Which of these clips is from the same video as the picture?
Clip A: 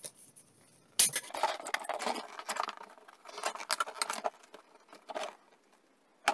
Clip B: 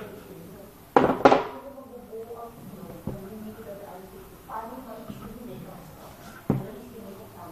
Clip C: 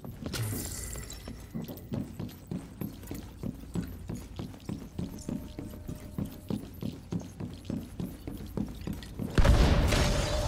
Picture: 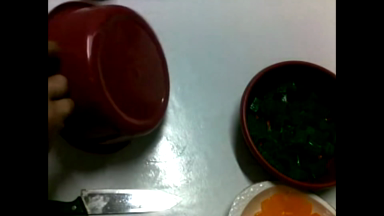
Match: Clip B